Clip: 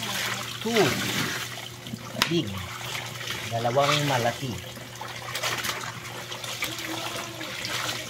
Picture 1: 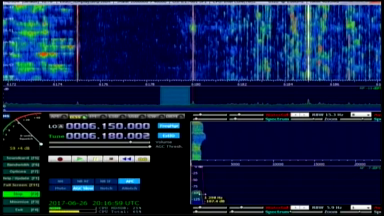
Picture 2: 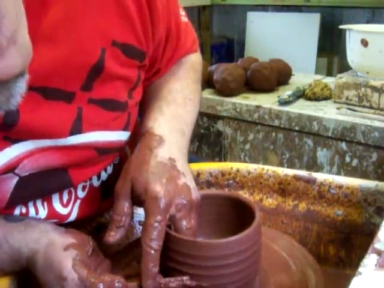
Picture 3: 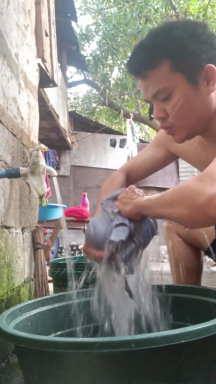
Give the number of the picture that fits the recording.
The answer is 3